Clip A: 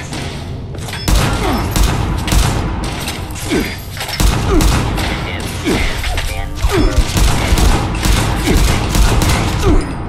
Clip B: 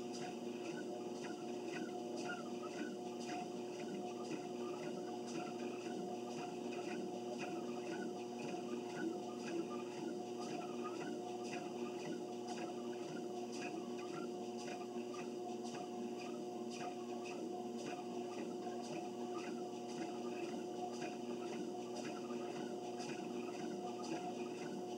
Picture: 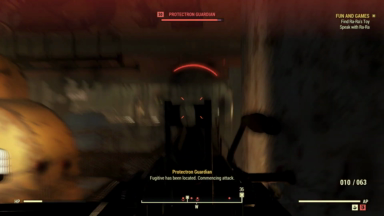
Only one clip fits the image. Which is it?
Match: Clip A